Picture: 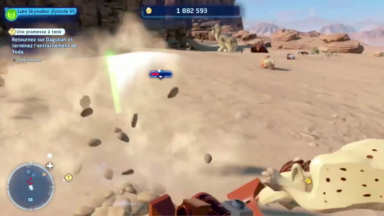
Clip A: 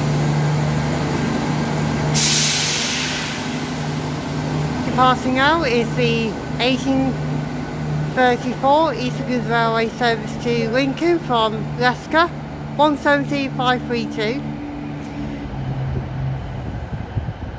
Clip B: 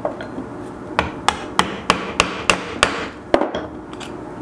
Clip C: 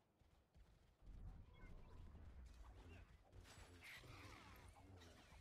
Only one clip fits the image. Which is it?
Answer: C